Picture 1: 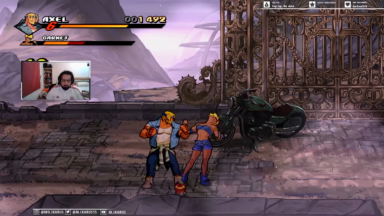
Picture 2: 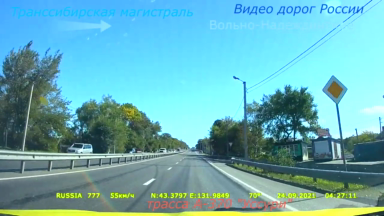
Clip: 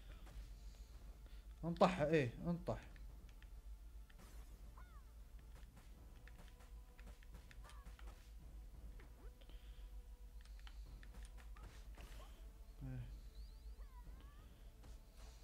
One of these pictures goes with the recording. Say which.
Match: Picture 1